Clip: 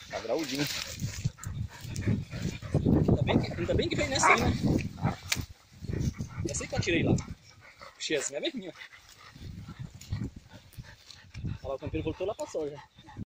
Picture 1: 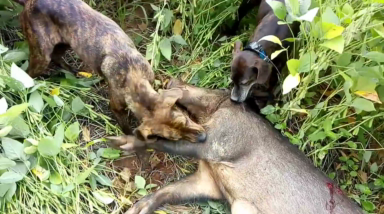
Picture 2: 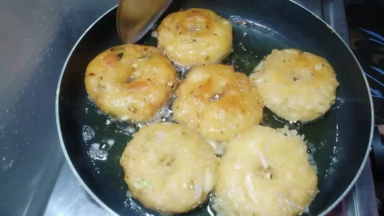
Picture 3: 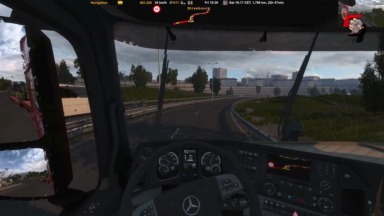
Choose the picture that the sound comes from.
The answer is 1